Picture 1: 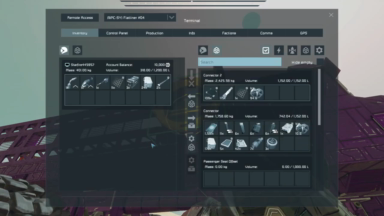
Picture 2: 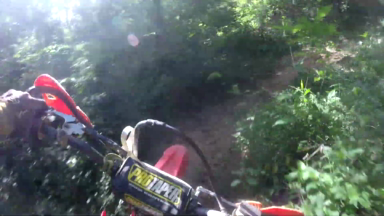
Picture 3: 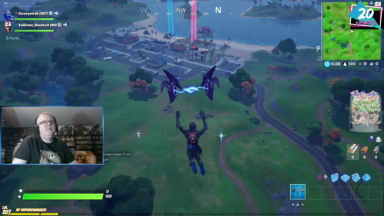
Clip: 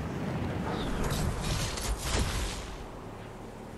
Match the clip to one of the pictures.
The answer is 3